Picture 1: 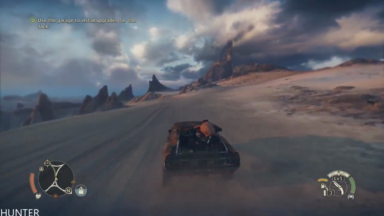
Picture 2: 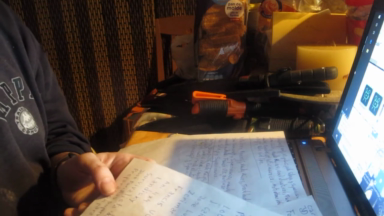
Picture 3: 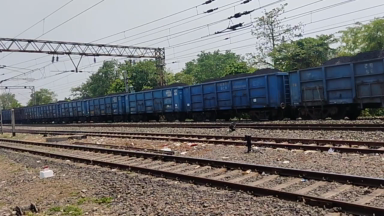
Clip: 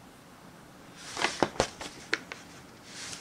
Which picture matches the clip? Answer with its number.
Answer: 2